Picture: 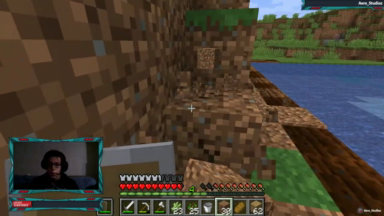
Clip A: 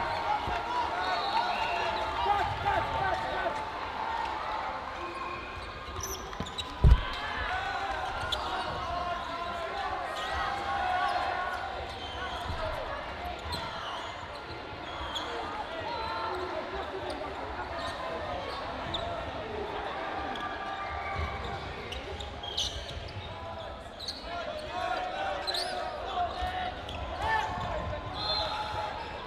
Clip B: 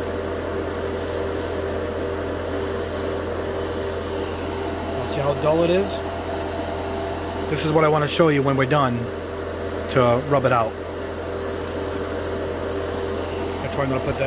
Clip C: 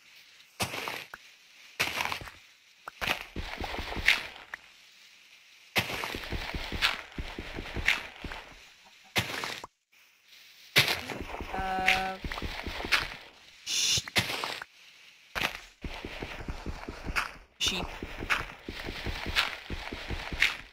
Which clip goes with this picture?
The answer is C